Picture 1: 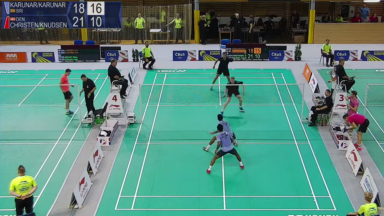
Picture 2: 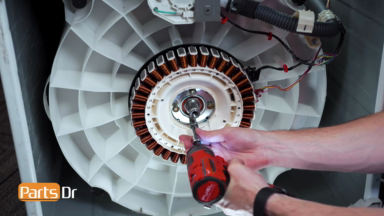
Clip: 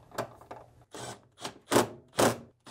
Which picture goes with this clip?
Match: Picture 2